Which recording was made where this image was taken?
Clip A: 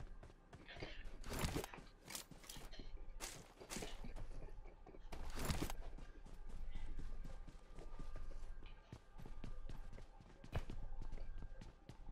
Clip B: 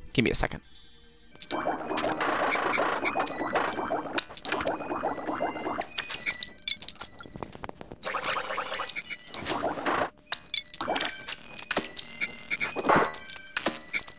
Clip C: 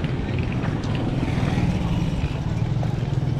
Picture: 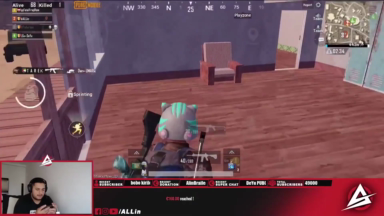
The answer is A